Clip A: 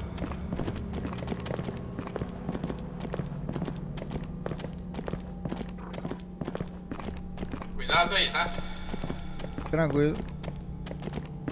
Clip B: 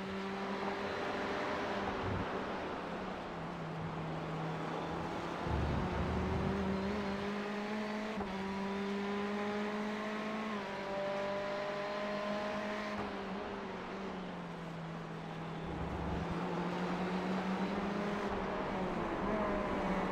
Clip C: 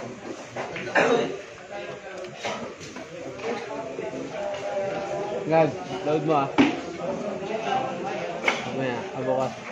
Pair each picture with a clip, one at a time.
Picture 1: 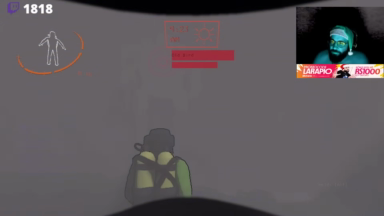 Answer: A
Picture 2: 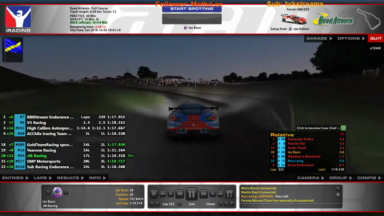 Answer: B